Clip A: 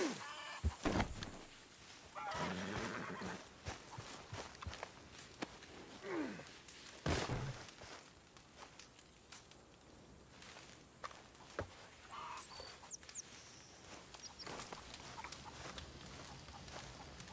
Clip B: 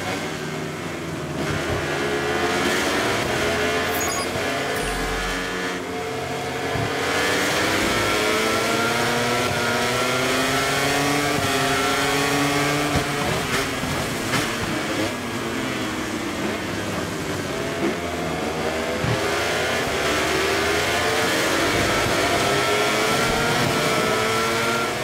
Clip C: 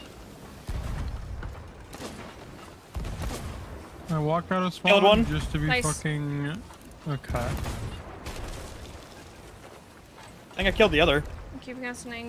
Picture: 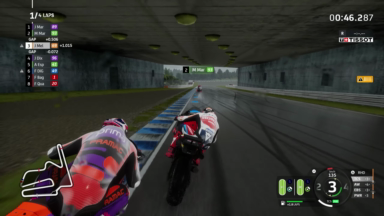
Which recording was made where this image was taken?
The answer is B